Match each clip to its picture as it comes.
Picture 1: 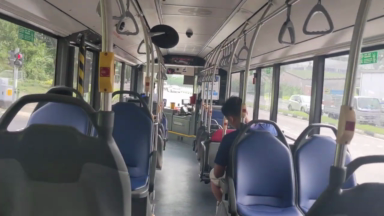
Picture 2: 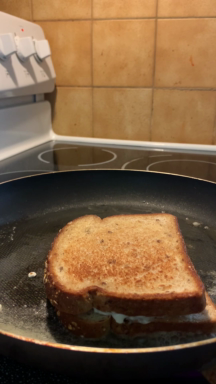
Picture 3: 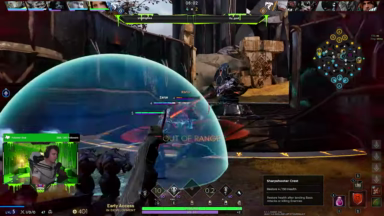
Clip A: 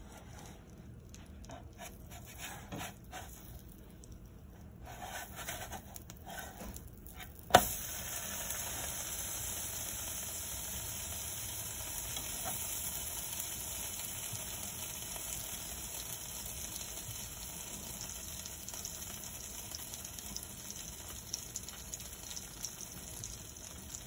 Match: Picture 2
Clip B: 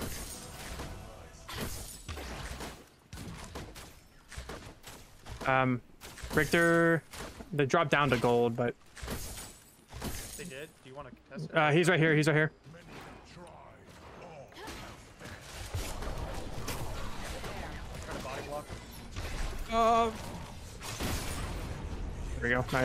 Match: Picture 3